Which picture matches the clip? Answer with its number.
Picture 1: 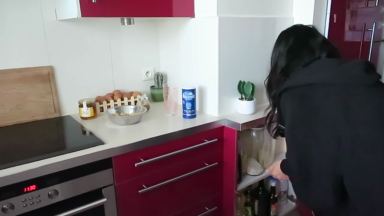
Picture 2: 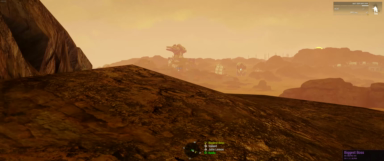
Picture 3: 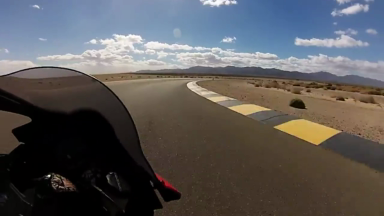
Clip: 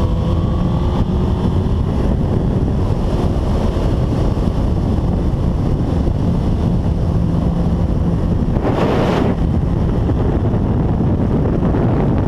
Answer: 3